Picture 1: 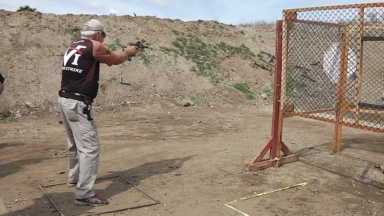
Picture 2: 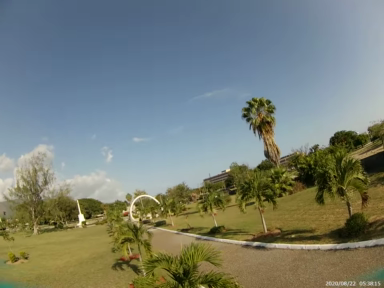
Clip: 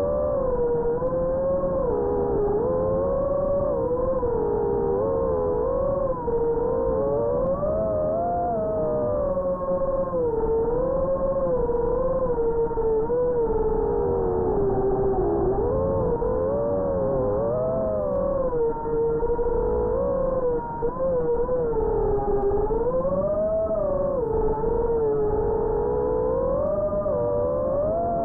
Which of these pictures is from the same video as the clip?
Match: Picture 2